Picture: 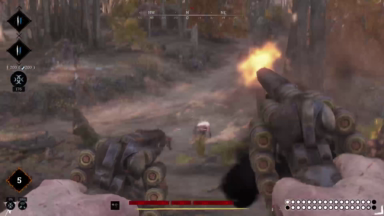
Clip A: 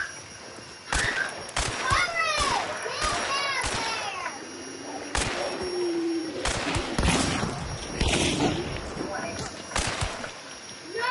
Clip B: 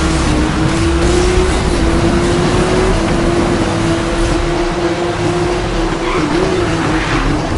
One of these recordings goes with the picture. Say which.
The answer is A